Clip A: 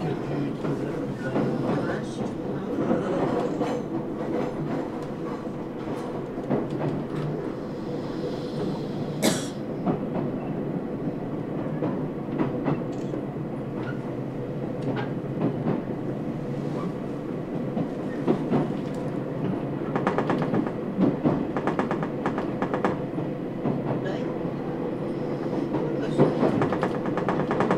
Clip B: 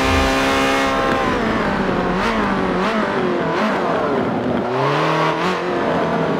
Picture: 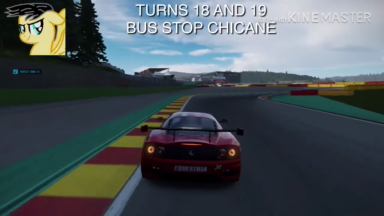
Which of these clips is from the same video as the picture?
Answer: B